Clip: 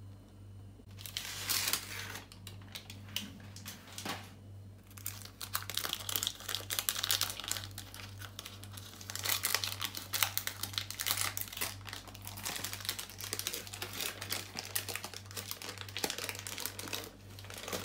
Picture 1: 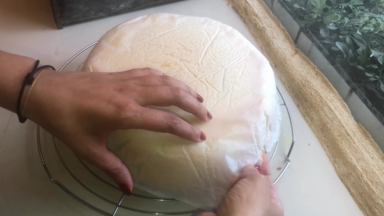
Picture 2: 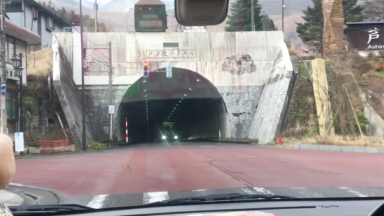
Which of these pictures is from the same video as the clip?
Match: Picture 1